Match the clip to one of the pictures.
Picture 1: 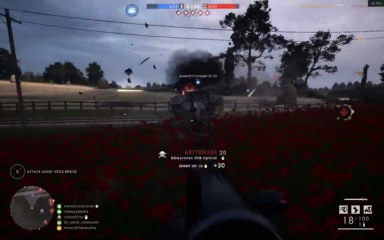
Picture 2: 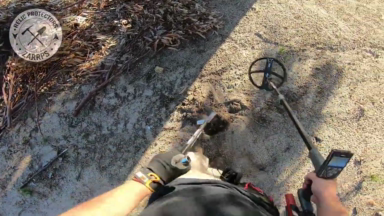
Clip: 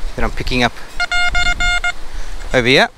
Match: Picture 2